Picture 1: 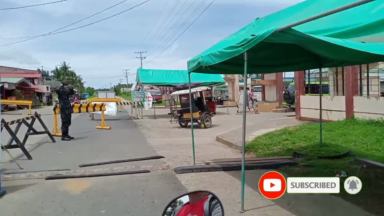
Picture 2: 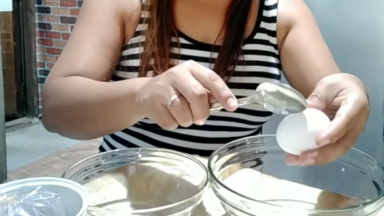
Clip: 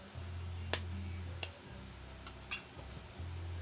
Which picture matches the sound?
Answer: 2